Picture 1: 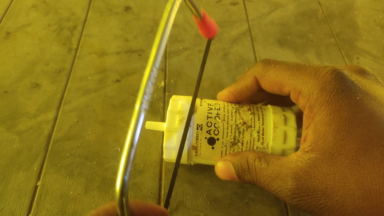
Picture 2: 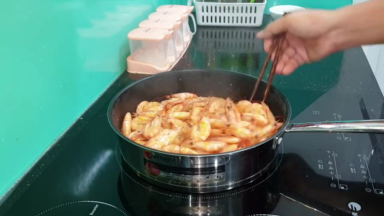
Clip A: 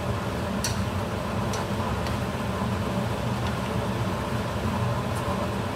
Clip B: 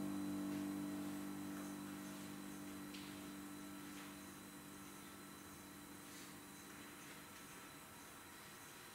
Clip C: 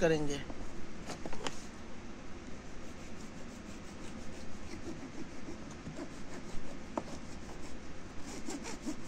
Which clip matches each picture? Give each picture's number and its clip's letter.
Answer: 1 C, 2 A